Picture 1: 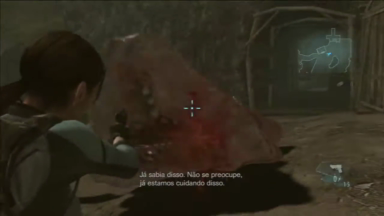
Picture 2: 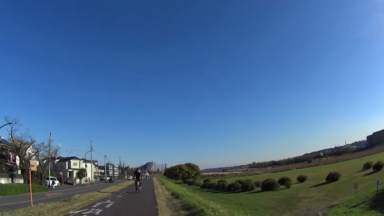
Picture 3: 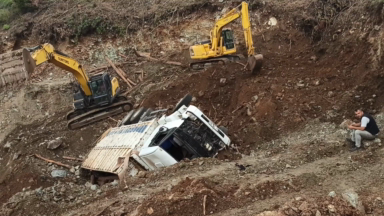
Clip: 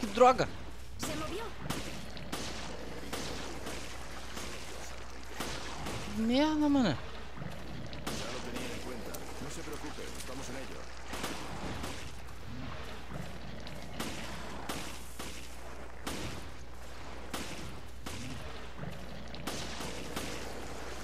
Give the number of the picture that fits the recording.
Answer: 1